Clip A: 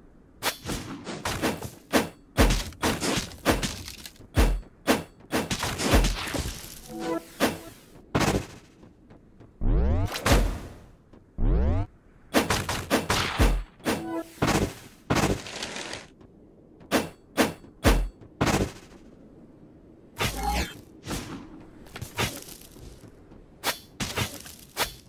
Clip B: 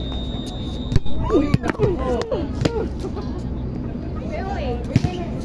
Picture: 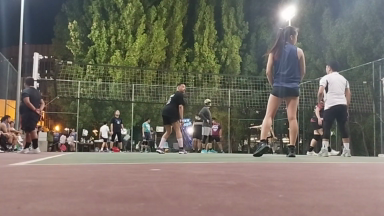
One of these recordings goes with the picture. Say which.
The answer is B